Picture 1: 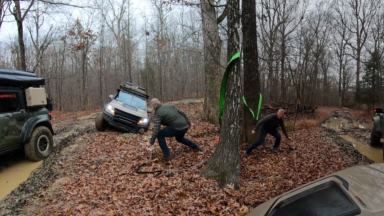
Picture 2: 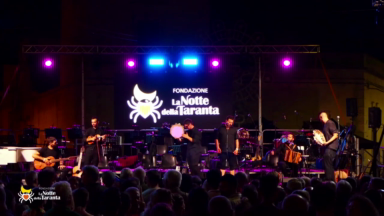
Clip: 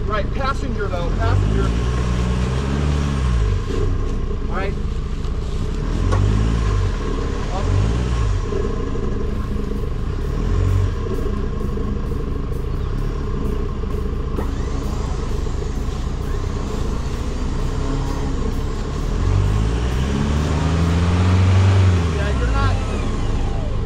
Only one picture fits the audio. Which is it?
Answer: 1